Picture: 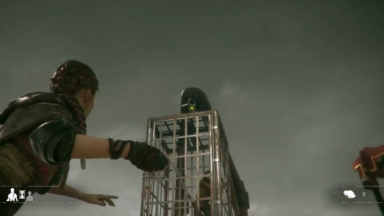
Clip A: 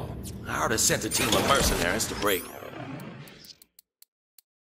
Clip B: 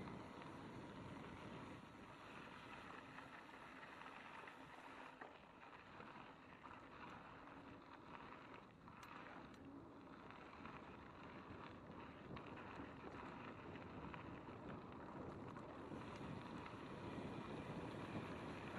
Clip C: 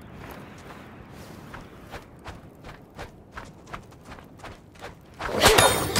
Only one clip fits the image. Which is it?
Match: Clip C